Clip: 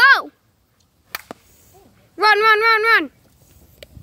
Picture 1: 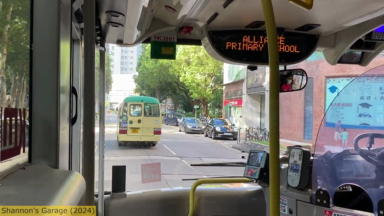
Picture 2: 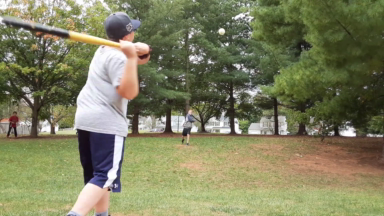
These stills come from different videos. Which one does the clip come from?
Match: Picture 2